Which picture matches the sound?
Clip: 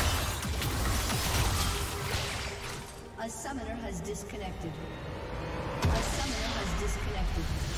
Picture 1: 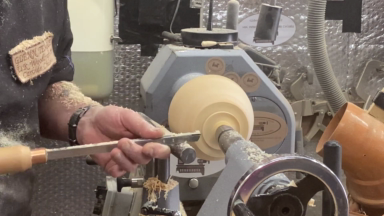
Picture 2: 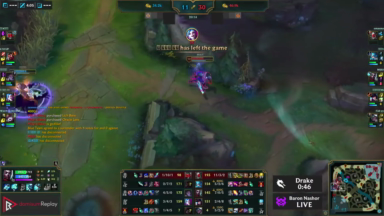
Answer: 2